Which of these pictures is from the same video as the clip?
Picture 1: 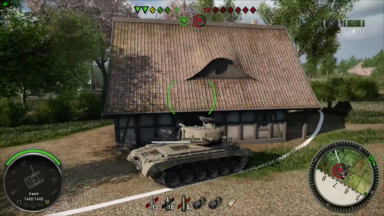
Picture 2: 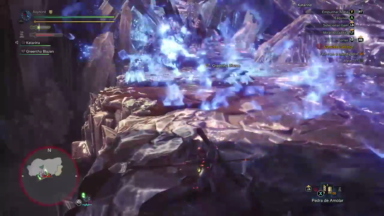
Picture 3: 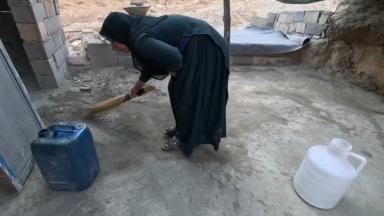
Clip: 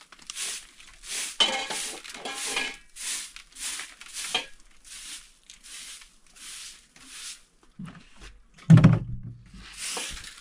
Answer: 3